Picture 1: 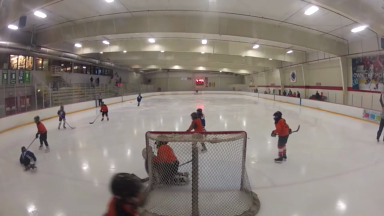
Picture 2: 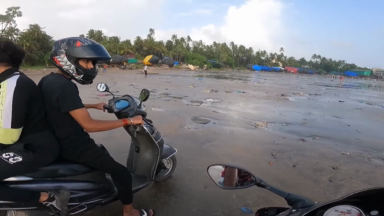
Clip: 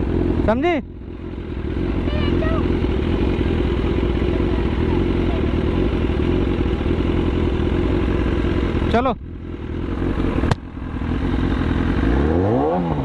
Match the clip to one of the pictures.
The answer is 2